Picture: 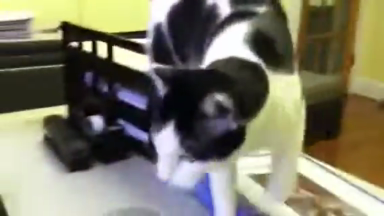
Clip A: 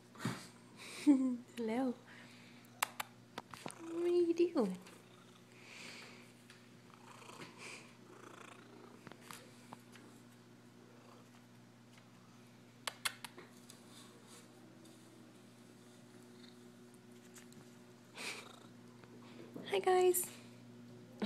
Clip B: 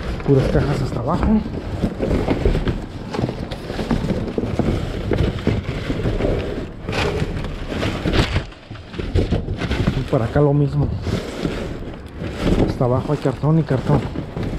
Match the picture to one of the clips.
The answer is A